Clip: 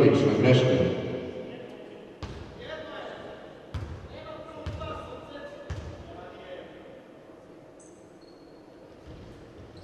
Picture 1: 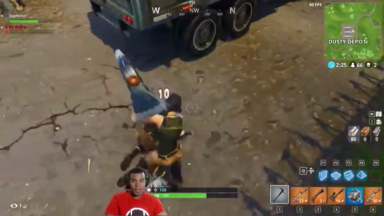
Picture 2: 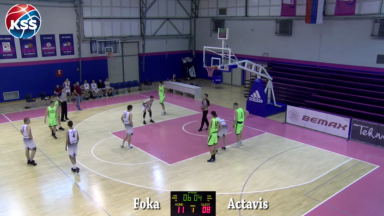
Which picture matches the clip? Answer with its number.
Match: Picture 2